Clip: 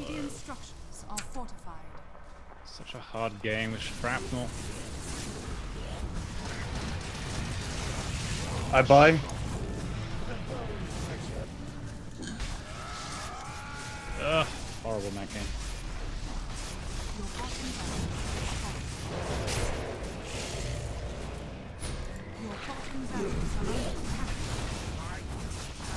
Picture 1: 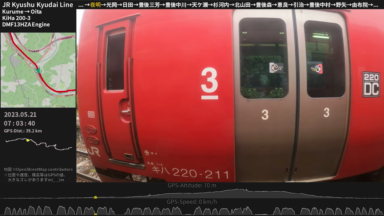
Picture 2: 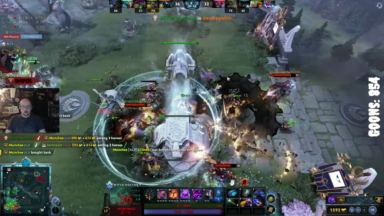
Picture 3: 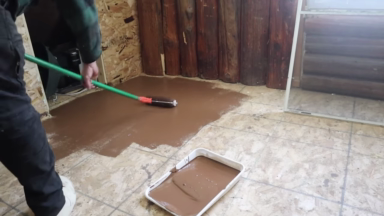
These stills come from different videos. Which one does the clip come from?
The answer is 2